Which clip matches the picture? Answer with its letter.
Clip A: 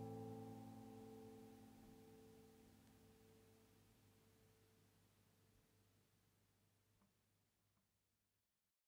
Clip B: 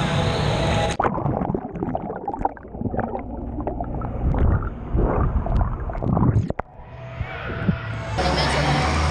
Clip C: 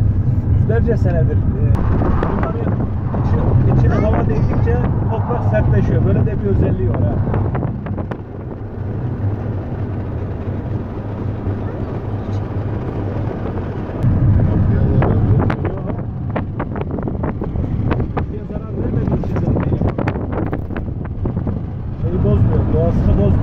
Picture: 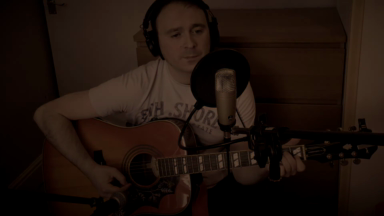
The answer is A